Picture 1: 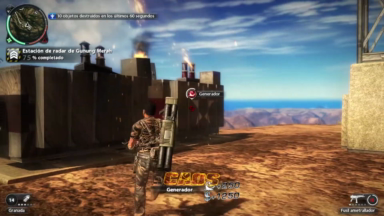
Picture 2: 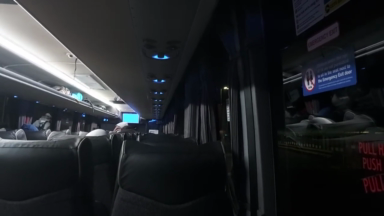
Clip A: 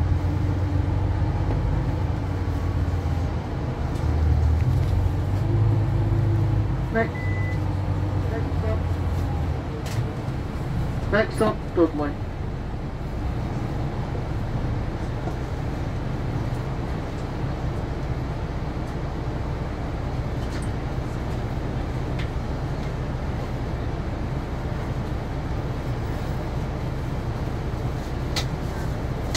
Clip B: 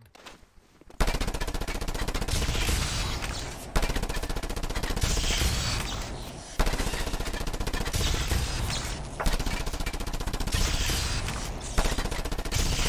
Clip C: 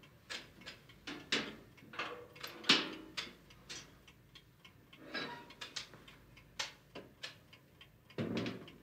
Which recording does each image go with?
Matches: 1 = B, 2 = A